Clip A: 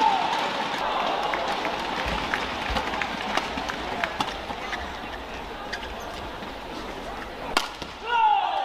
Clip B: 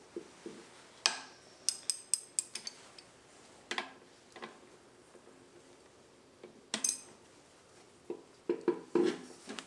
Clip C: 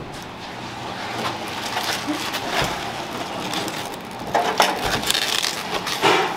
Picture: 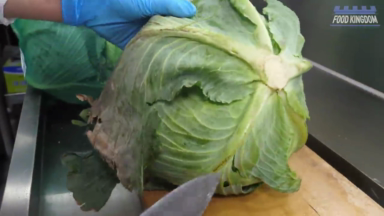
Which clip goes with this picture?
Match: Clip C